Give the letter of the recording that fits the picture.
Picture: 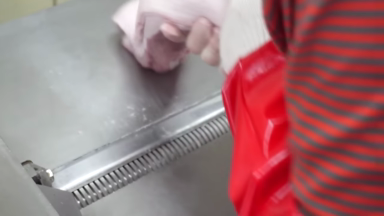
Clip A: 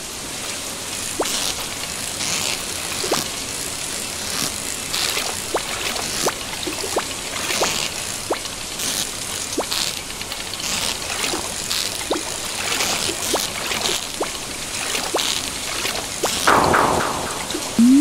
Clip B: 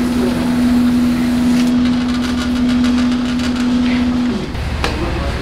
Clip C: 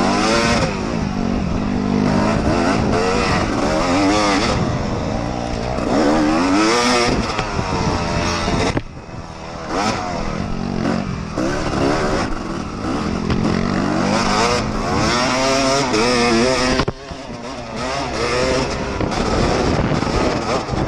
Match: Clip B